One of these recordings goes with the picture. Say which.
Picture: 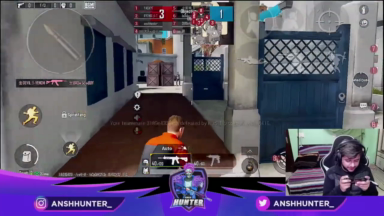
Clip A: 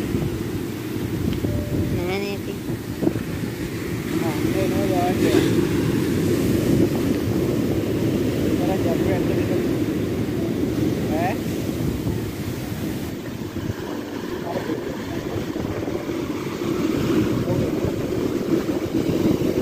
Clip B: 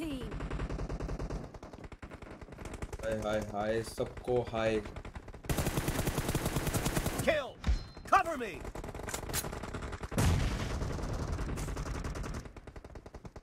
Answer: B